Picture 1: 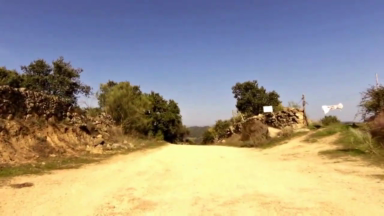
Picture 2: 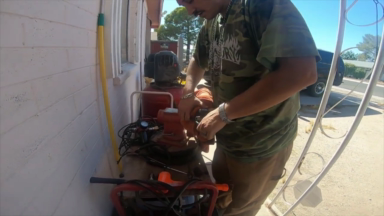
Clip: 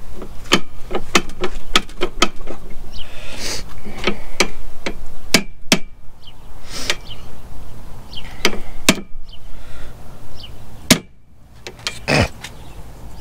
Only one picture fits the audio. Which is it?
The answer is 2